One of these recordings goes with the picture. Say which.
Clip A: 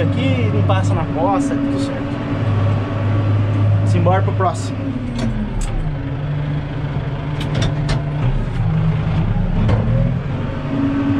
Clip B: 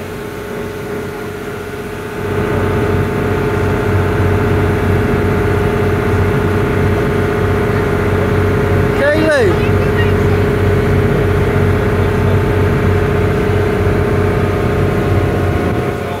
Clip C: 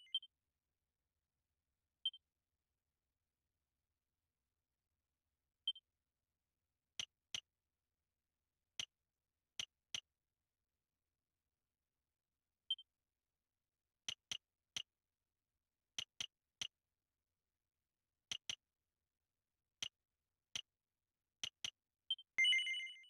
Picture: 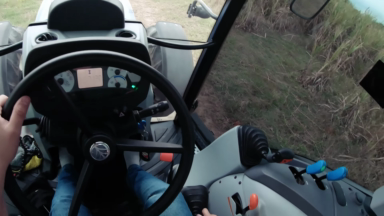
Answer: A